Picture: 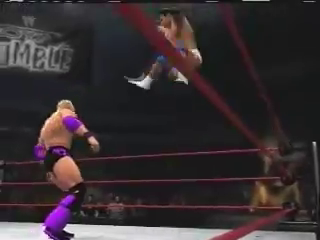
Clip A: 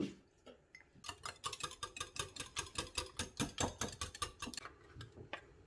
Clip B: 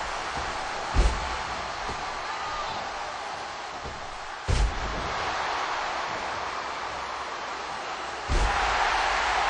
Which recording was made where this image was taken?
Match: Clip B